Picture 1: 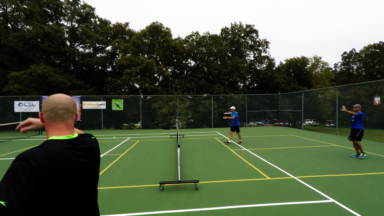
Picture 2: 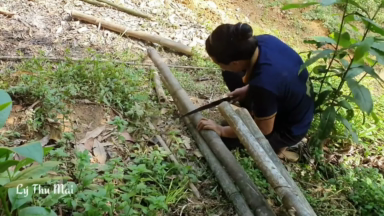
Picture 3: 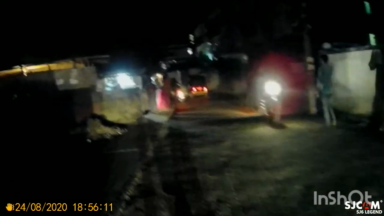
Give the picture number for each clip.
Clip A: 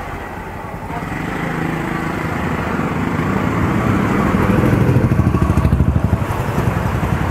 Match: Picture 3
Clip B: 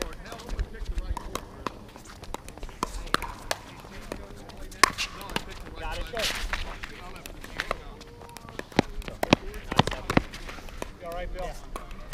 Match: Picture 1